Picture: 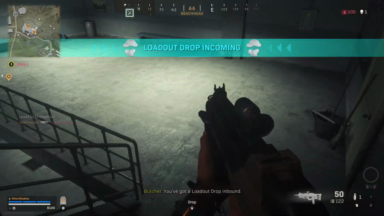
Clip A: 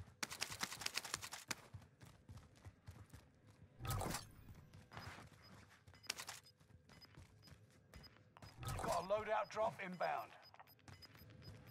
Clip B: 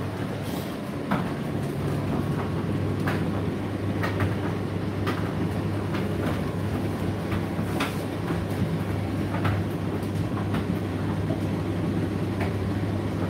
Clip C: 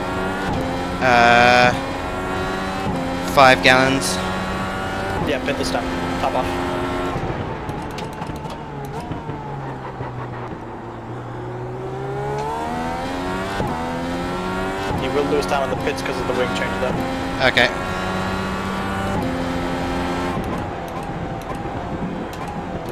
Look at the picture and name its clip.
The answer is A